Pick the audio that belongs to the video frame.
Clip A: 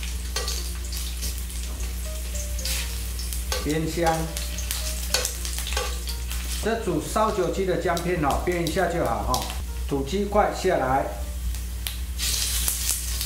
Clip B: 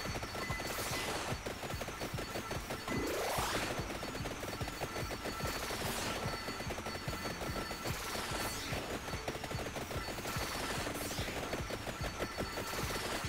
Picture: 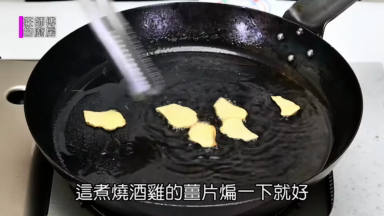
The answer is A